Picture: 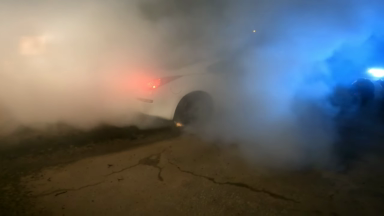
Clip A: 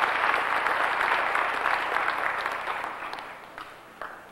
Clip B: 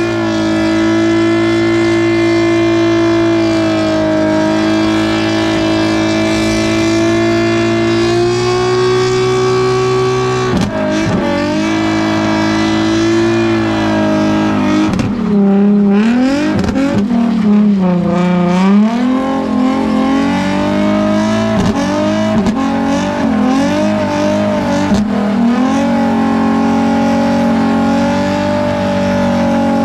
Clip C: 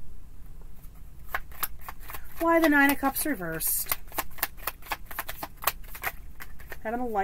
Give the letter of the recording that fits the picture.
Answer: B